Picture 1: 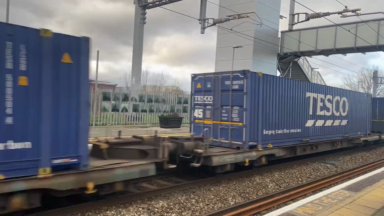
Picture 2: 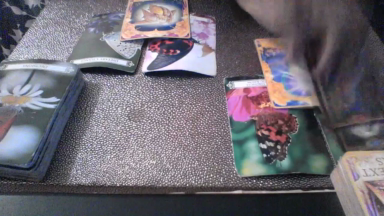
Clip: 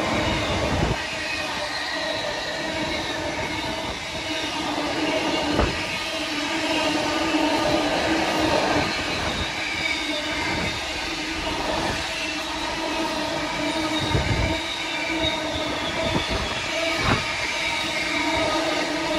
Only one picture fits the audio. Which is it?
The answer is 1